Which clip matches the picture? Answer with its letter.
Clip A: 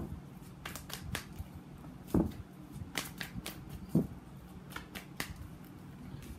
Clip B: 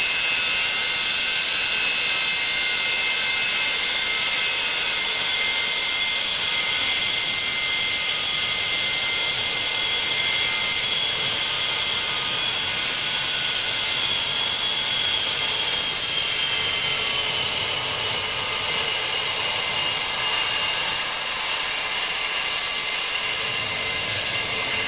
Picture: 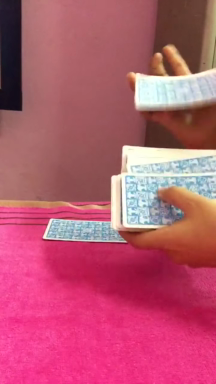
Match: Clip A